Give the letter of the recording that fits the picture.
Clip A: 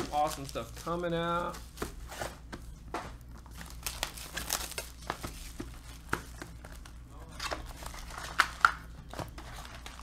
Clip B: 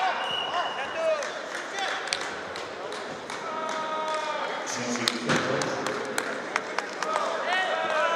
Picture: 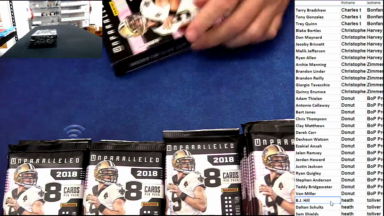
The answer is A